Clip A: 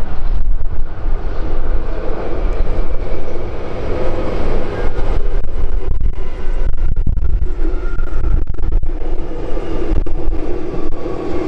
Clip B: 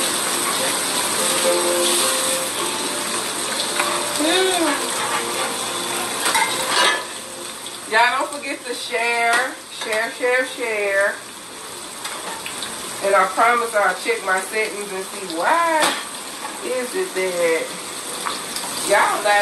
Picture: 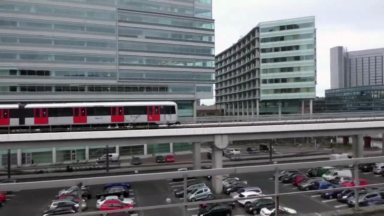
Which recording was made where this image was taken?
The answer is A